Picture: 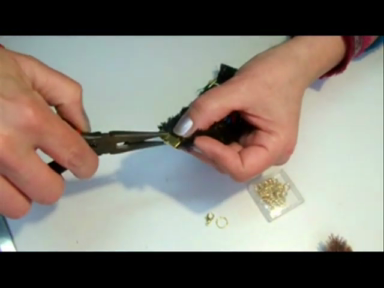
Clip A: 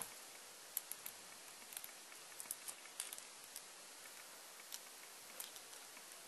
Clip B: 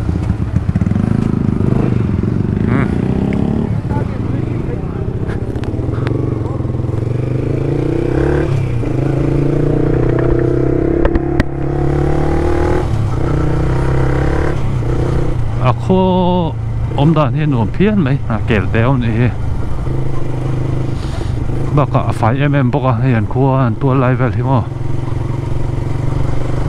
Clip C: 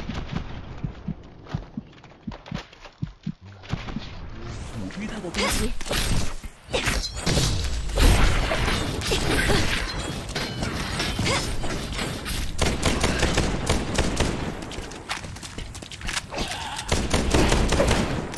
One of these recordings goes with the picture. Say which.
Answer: A